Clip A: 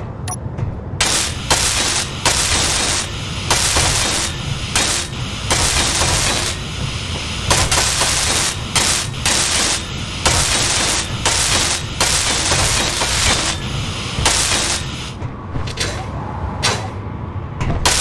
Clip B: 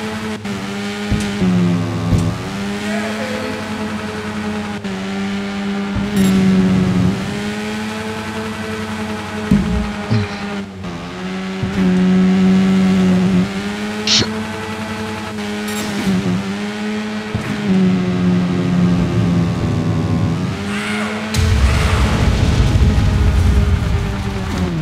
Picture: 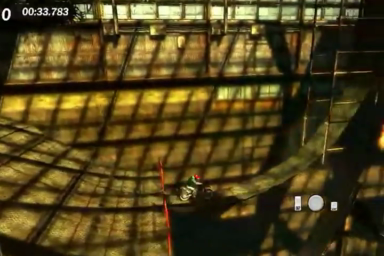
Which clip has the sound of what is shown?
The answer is B